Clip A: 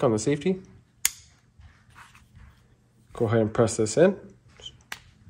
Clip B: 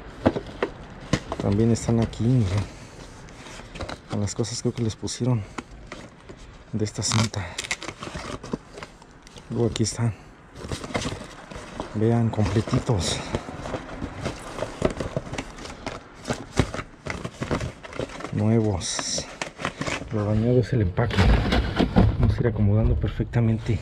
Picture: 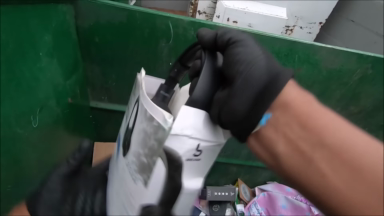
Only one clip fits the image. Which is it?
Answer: B